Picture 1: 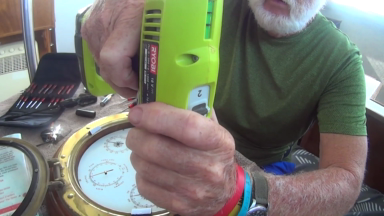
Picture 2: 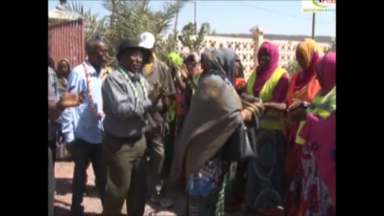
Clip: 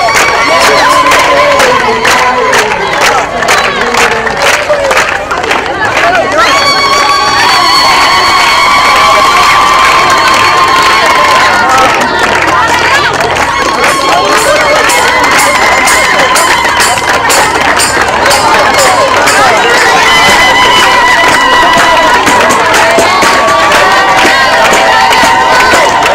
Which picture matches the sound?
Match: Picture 2